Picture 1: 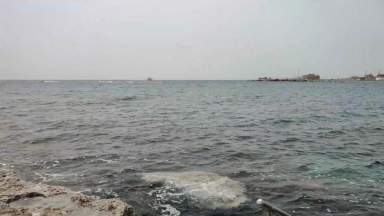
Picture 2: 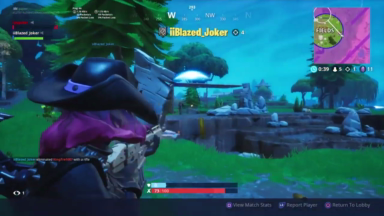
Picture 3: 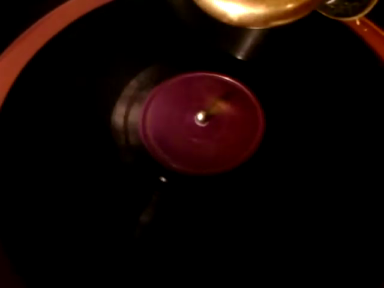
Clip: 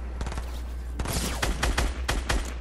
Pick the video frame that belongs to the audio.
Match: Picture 2